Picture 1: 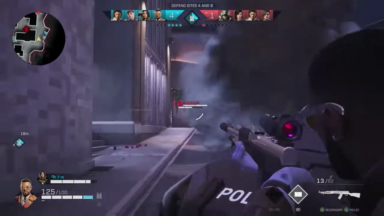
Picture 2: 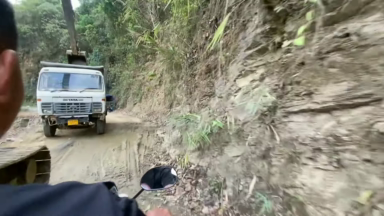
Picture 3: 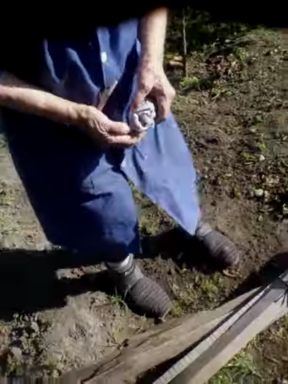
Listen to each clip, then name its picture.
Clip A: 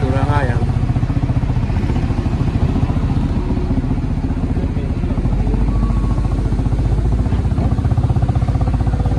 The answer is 2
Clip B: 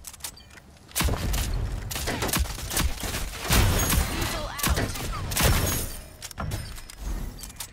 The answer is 1